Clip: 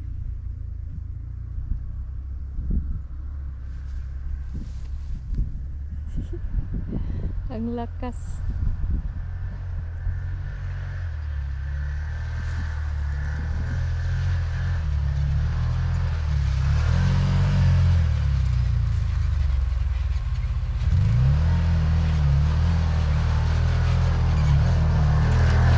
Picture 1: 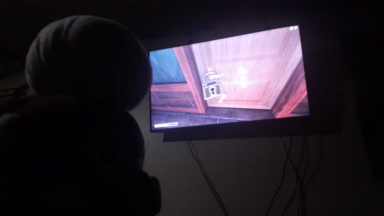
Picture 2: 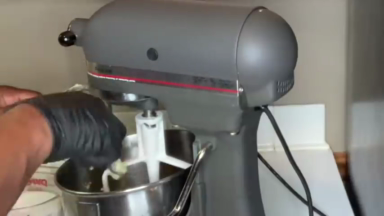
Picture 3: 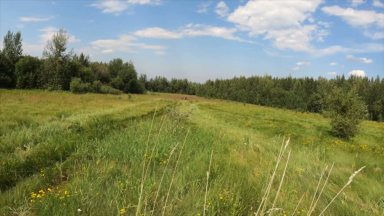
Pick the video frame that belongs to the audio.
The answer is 3